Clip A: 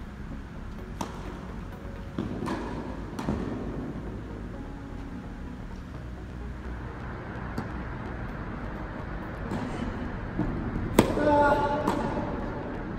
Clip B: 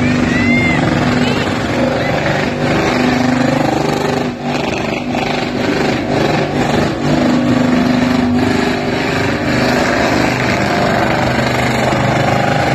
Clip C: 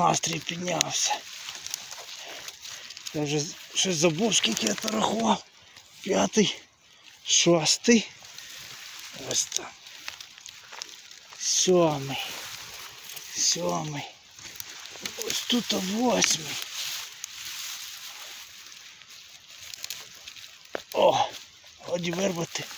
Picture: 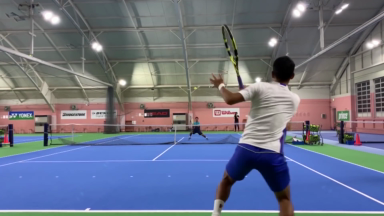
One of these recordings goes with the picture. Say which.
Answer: A